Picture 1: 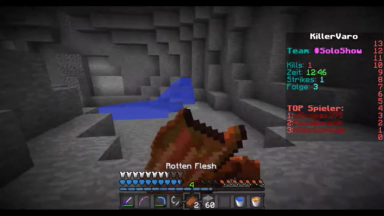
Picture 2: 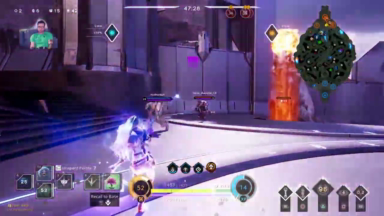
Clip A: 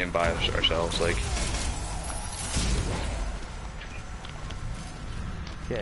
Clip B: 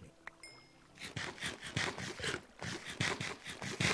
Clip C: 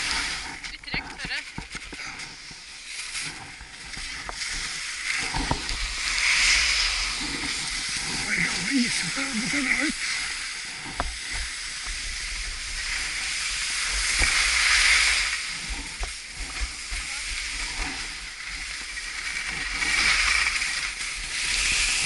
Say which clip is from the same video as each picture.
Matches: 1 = B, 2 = A